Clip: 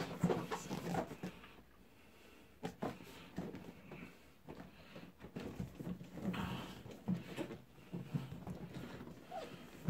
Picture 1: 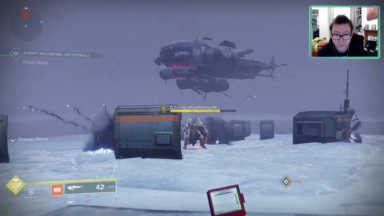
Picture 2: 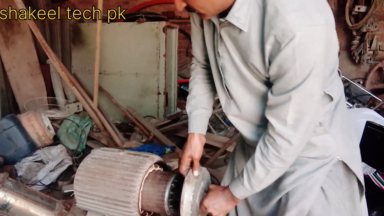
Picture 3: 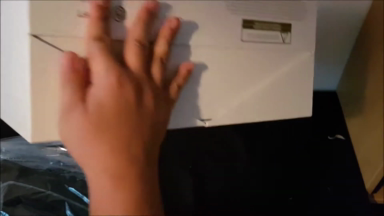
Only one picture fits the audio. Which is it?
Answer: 3